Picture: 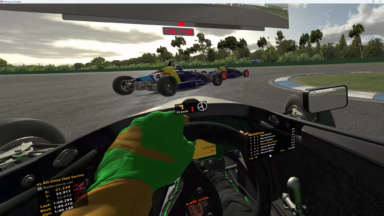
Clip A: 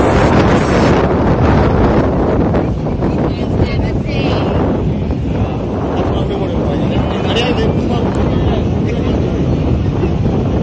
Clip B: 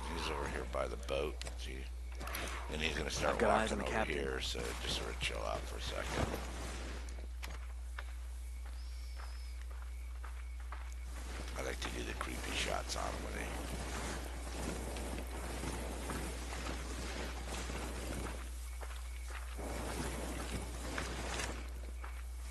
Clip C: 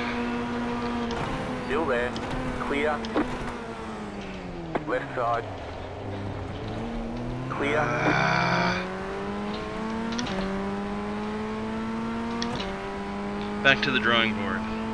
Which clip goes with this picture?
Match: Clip C